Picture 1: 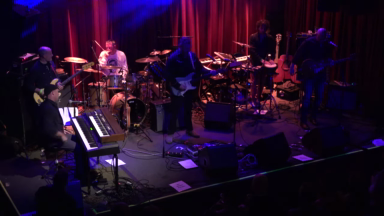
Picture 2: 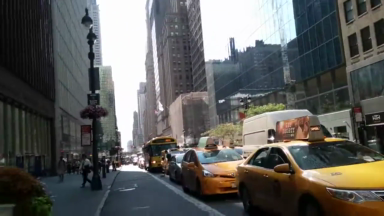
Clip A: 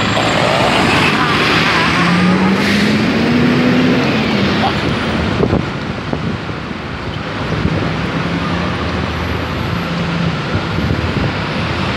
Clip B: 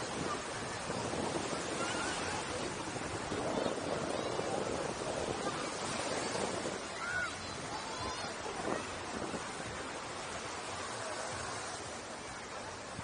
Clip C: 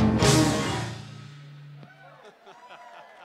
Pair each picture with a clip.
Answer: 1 C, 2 A